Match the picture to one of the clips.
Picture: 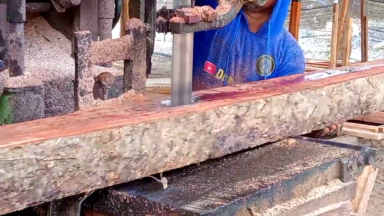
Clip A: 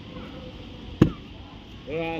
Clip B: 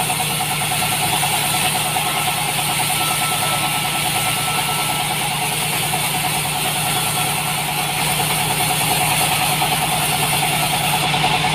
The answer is B